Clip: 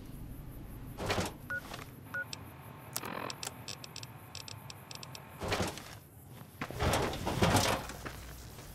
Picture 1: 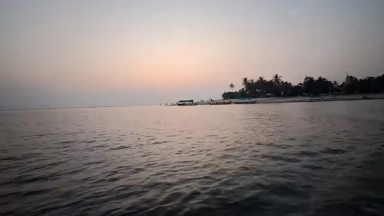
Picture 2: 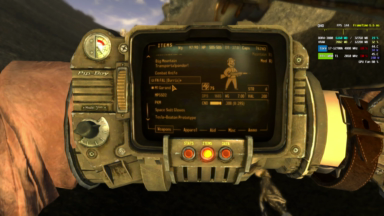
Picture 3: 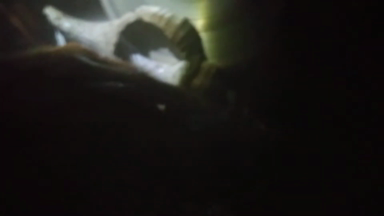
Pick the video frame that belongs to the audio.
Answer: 2